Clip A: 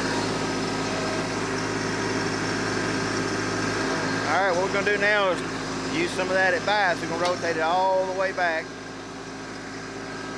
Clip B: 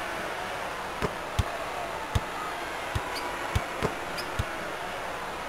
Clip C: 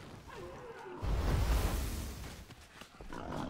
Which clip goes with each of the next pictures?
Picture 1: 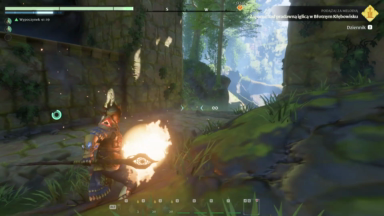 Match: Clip C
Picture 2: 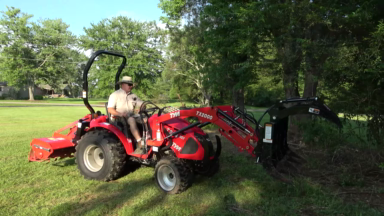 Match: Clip A